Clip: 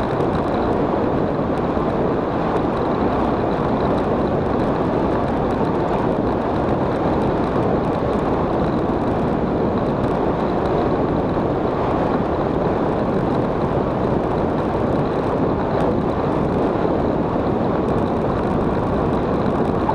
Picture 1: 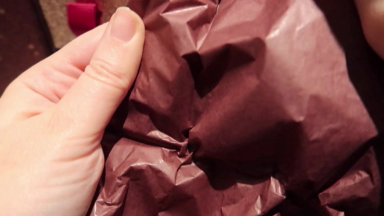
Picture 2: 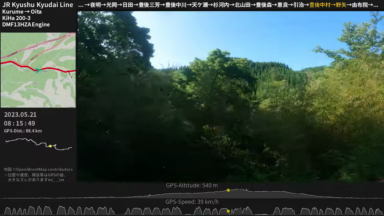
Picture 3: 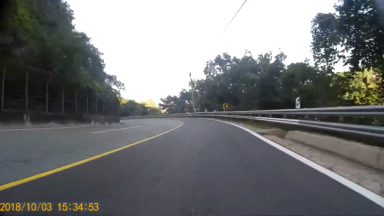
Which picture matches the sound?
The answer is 3